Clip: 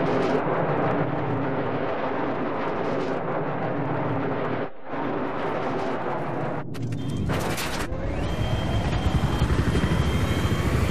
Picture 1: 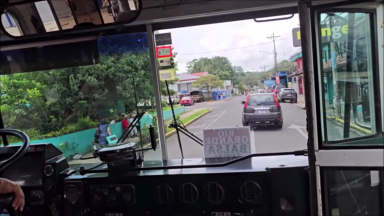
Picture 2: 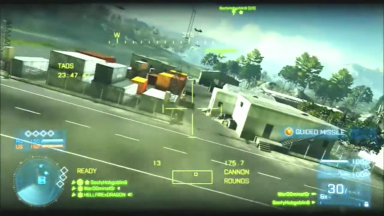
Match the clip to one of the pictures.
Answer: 2